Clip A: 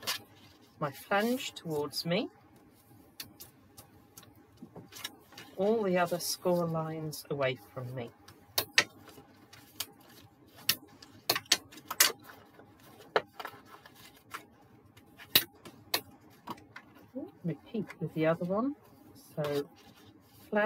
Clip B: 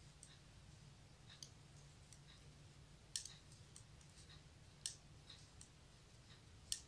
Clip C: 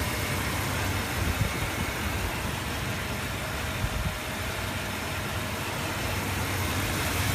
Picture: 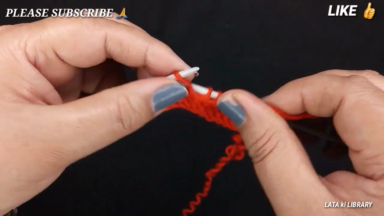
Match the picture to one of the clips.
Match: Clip B